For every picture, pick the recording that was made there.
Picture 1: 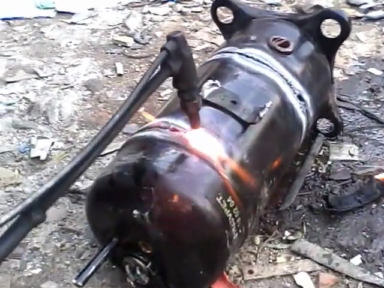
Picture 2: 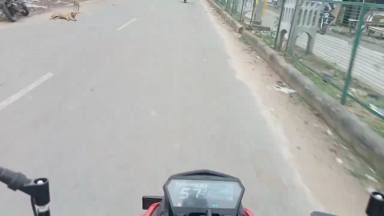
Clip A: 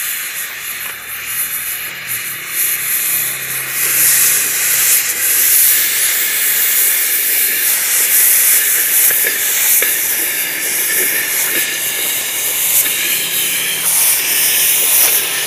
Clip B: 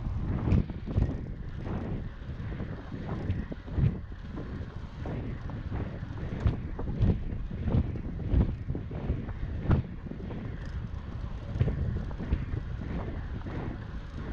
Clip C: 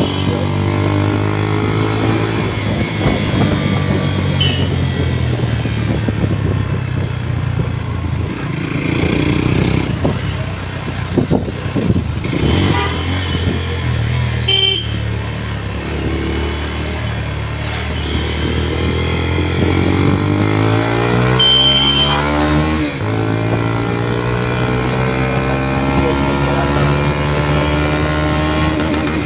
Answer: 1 A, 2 C